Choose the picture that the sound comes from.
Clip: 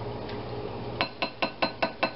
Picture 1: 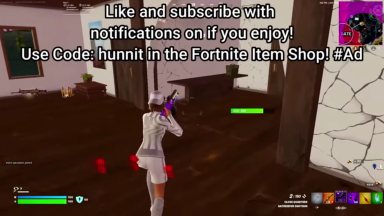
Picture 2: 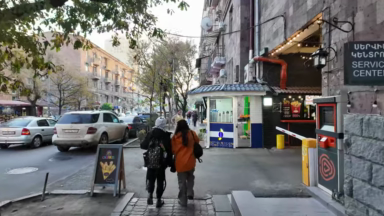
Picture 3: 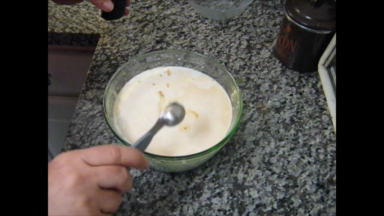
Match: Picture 3